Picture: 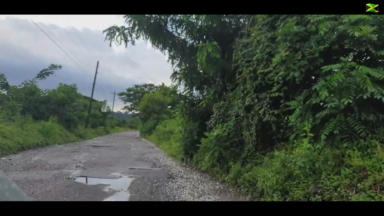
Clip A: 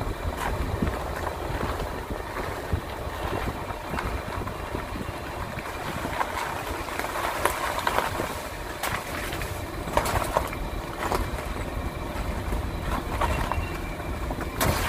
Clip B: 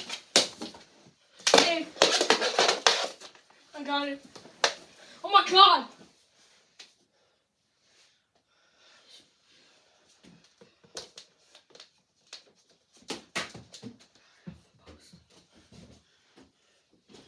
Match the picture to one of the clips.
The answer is A